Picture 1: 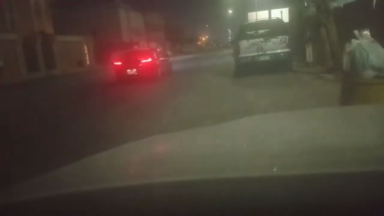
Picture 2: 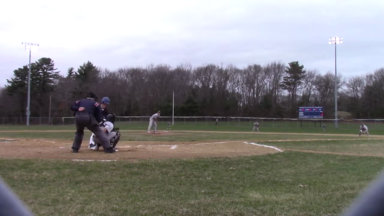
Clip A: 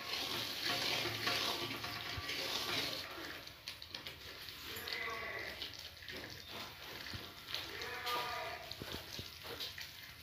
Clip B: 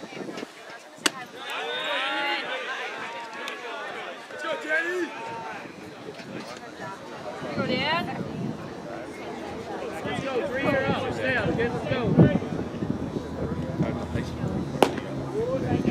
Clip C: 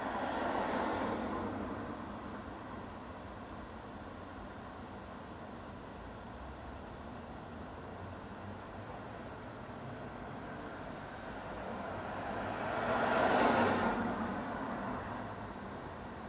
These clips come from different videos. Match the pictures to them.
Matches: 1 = C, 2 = B